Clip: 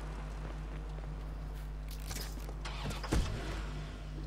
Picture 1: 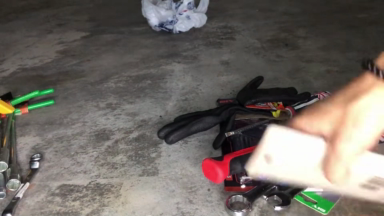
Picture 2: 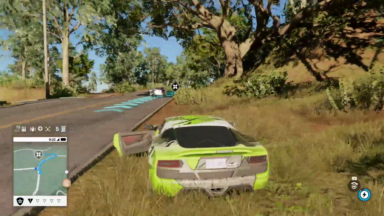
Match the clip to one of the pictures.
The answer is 2